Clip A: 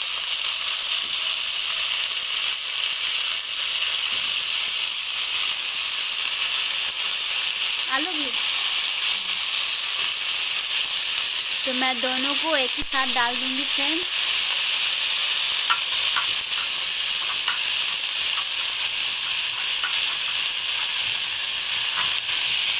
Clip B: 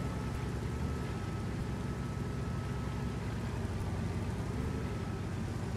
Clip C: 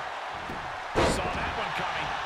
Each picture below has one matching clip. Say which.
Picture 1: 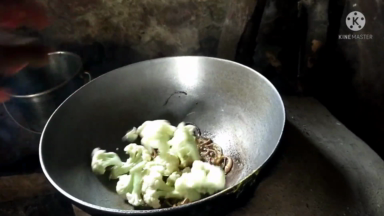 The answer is A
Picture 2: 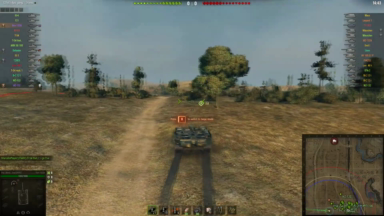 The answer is B